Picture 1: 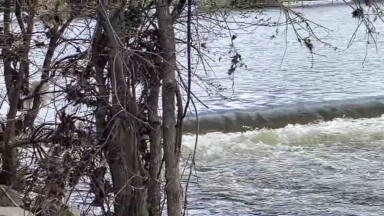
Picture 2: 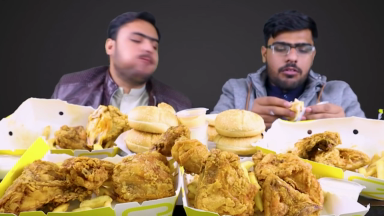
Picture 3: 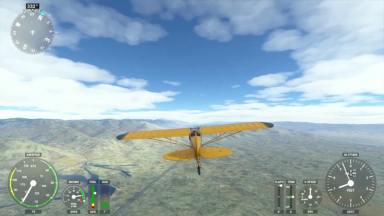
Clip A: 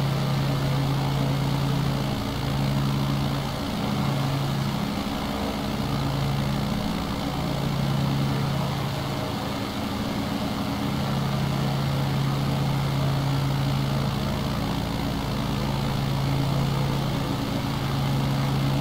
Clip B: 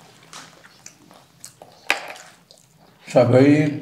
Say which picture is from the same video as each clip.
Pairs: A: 3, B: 2